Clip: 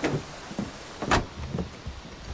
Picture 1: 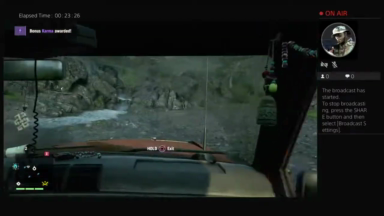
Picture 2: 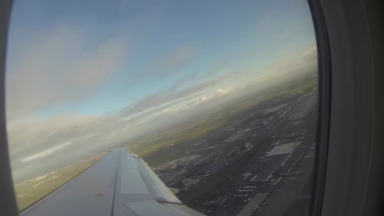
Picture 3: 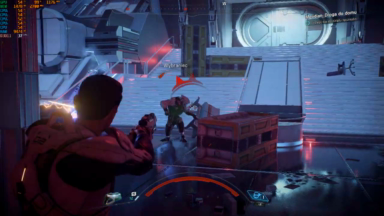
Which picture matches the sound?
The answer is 1